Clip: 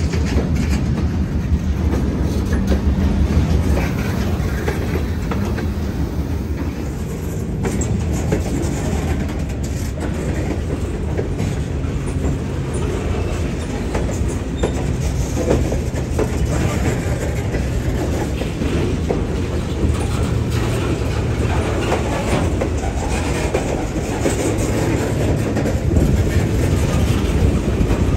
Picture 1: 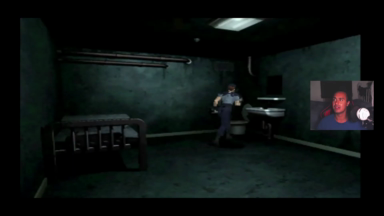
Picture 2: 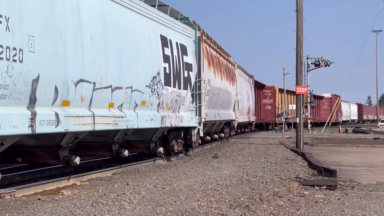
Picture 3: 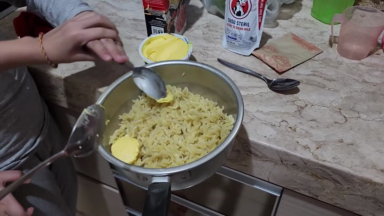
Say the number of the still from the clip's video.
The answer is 2